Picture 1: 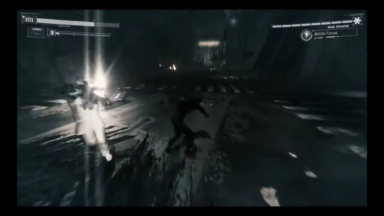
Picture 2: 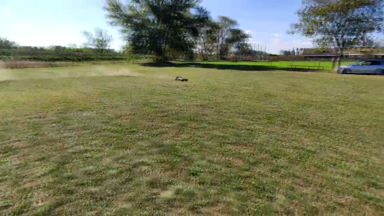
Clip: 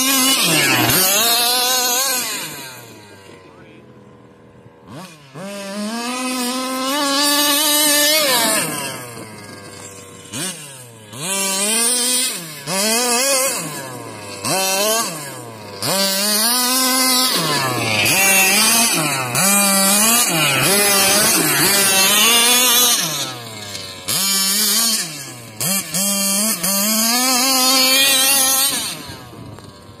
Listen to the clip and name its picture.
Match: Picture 2